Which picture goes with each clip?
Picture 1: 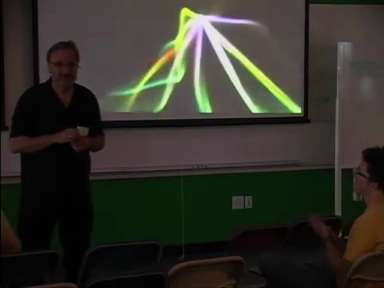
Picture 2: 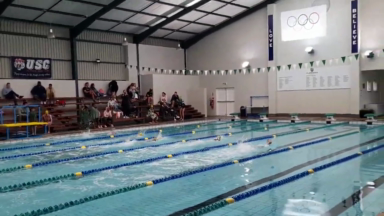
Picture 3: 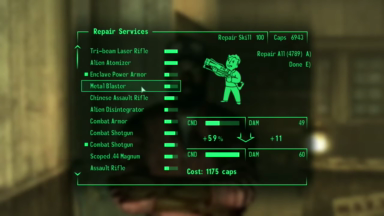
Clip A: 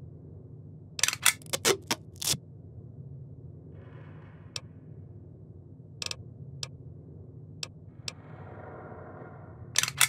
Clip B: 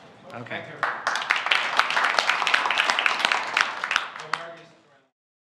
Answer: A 3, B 1